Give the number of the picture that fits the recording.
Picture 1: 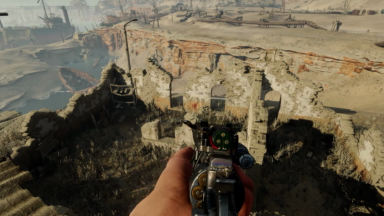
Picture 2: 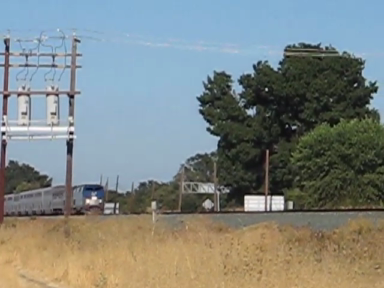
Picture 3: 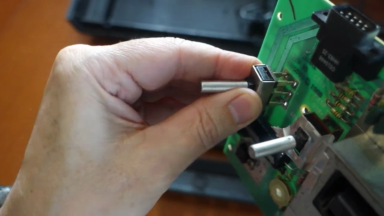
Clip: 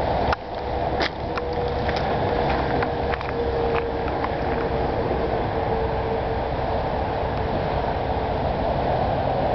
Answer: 2